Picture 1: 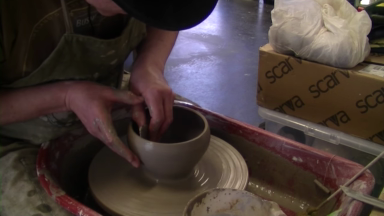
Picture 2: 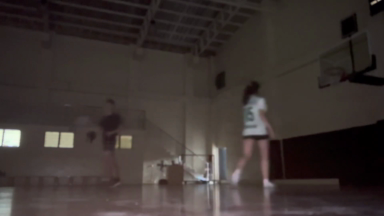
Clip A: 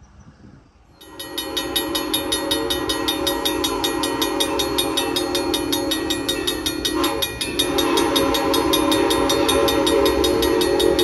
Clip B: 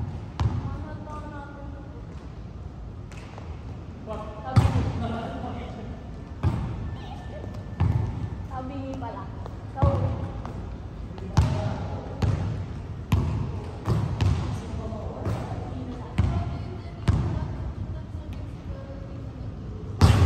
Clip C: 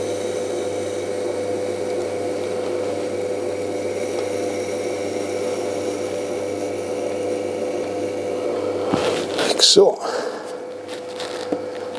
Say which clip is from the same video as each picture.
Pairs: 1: C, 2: B